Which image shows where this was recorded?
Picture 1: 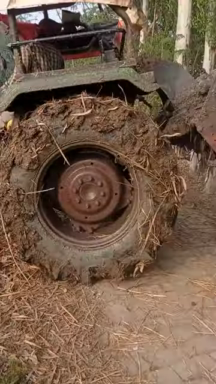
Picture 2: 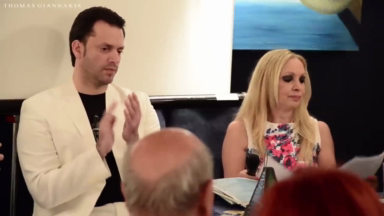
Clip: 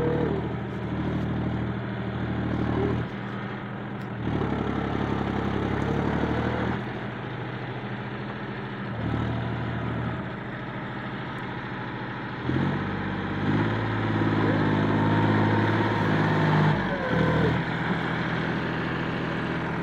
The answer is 1